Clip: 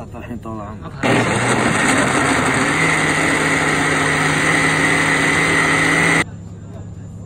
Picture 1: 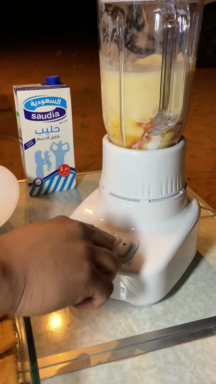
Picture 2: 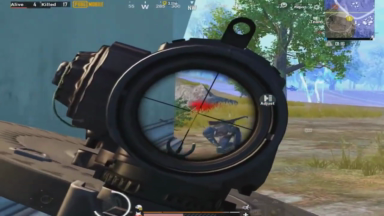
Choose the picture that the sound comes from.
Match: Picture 1